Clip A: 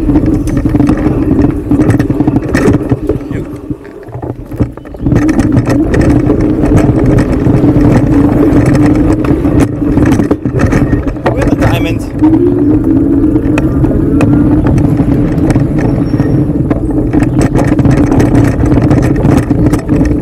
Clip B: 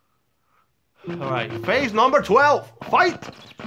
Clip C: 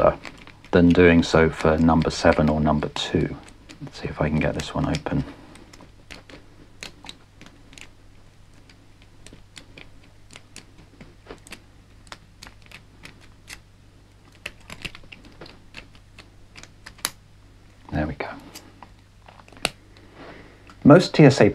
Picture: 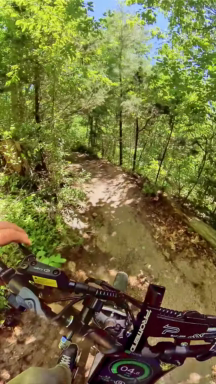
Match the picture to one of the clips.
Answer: A